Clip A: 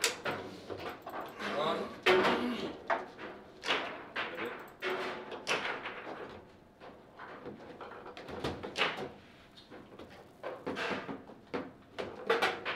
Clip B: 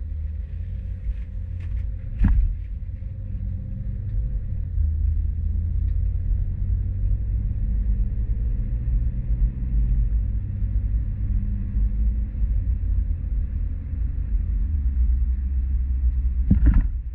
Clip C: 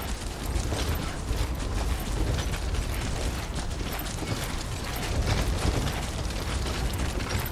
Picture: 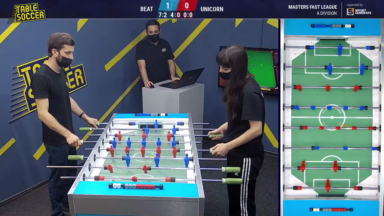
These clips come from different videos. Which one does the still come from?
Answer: A